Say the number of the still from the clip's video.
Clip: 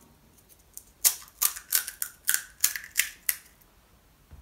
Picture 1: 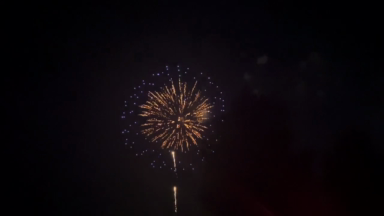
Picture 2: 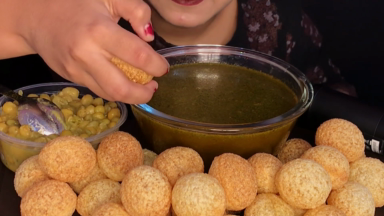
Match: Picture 2